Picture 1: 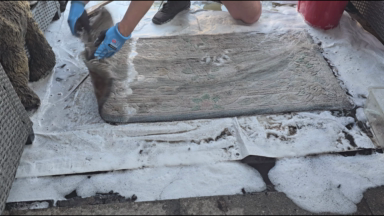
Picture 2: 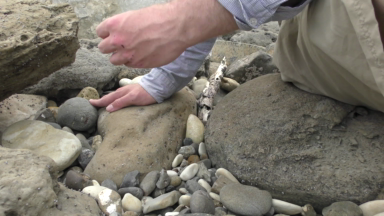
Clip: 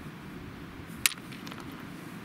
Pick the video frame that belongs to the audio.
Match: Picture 2